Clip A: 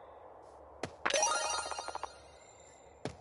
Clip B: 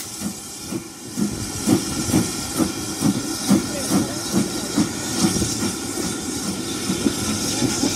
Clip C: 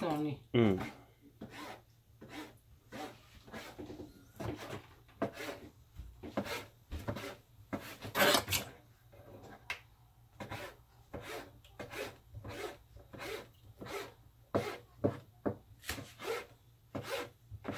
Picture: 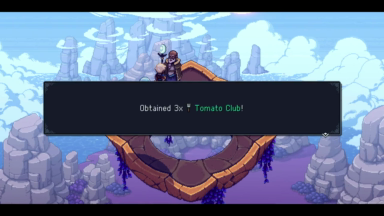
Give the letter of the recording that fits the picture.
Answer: A